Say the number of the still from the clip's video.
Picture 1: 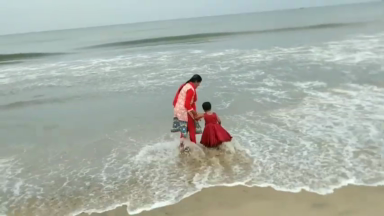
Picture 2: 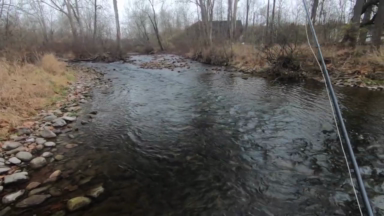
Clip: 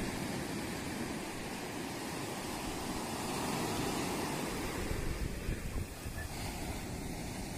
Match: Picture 1